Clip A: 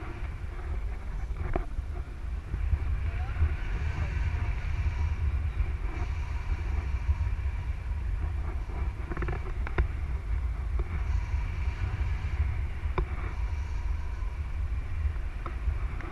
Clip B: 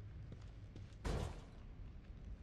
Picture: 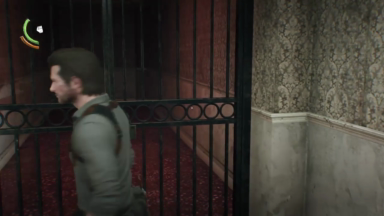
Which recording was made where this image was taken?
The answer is B